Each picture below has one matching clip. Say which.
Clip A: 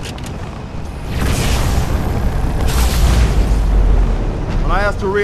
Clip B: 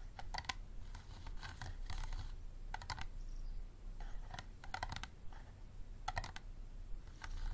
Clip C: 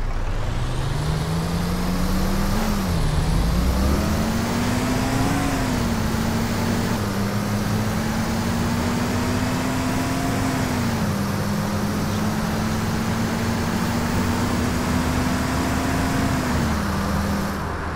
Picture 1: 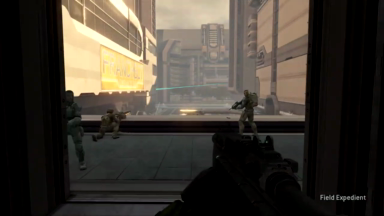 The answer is A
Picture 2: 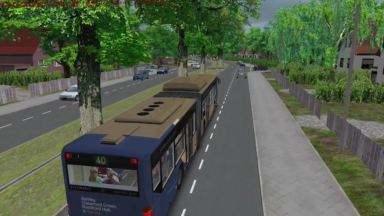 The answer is C